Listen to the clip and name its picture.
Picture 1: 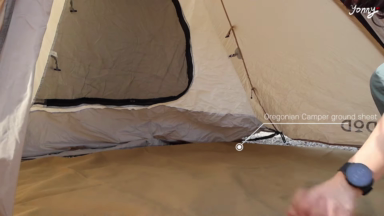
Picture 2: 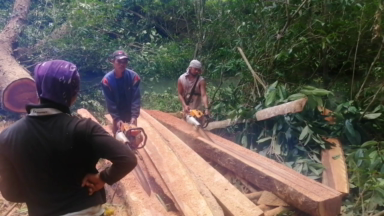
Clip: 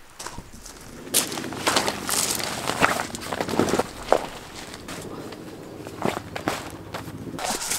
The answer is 1